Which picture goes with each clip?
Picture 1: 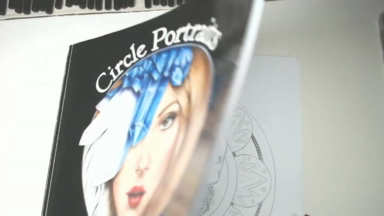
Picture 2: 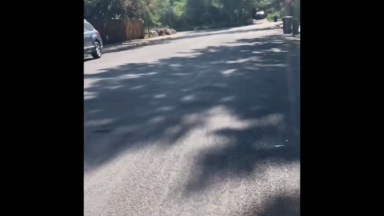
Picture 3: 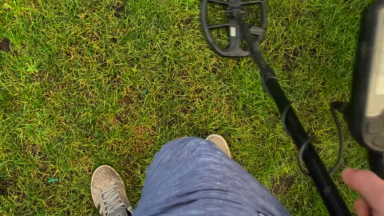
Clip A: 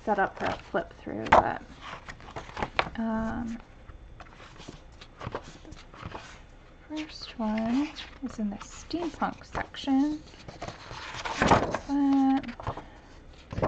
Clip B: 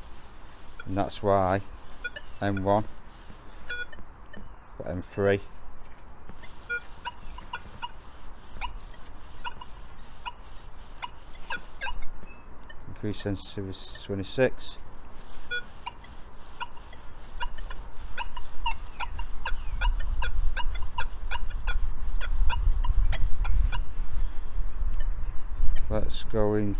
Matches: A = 1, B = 3